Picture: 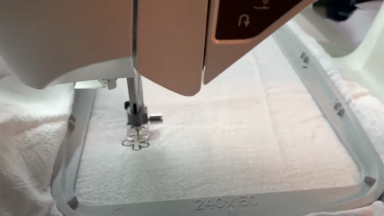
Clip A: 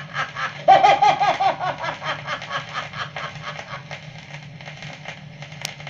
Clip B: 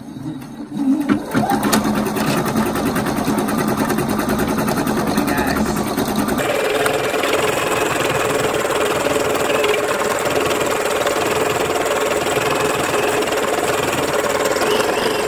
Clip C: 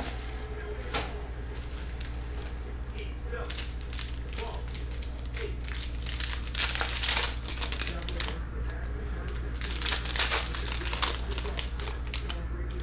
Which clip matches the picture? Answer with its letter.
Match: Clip B